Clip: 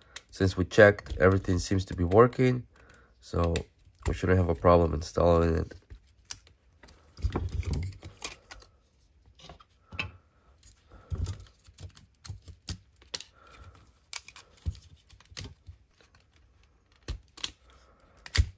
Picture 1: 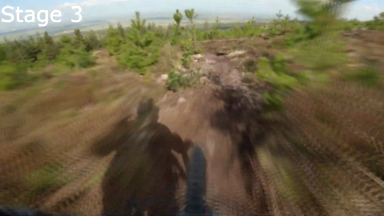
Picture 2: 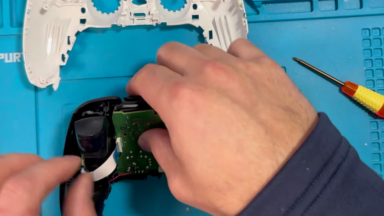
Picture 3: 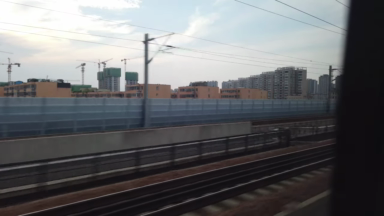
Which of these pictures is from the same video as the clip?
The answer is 2